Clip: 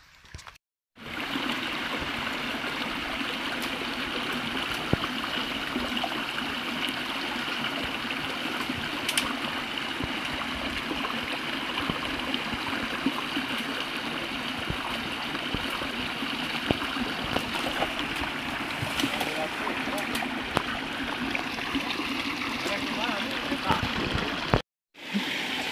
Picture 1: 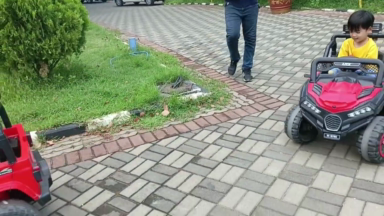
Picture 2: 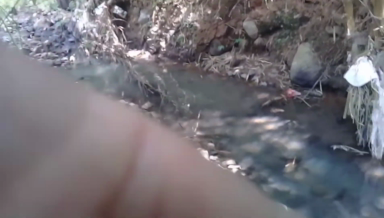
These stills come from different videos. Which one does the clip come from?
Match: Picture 2